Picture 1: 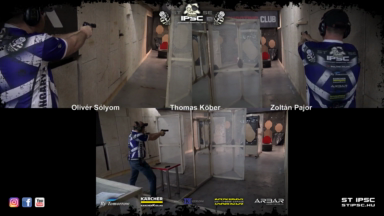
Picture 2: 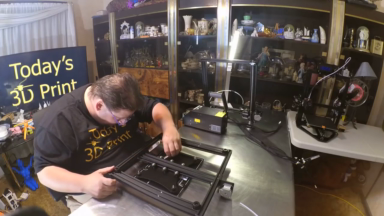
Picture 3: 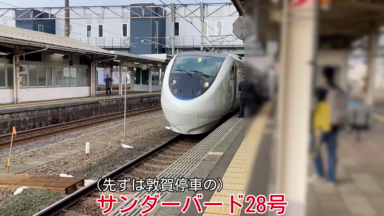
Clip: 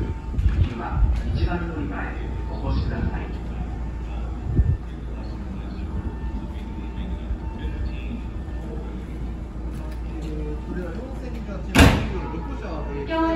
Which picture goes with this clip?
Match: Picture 3